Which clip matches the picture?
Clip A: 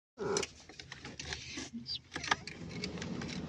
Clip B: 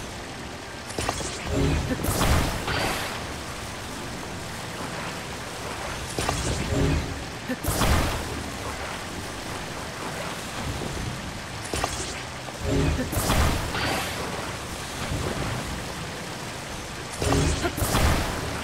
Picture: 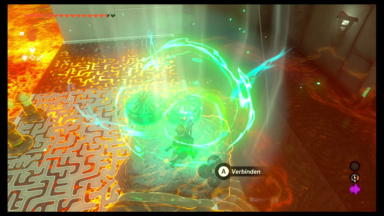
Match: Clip B